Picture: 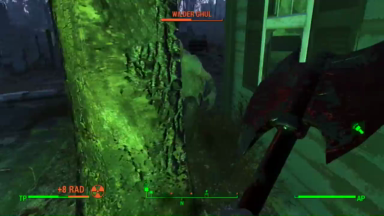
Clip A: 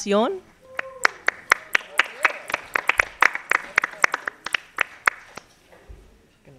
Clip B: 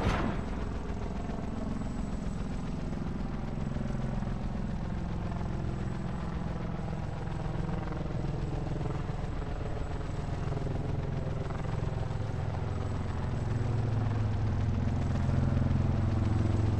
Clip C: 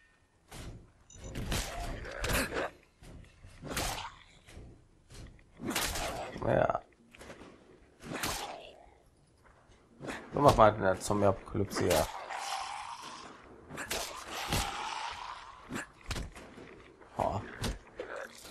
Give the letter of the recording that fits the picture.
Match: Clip C